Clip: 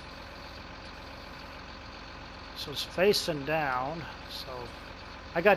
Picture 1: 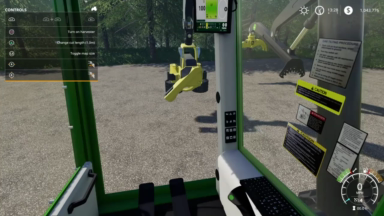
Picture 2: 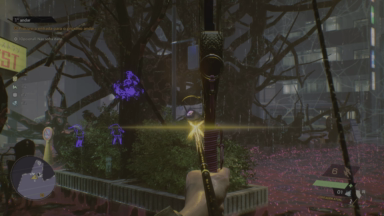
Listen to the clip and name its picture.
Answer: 1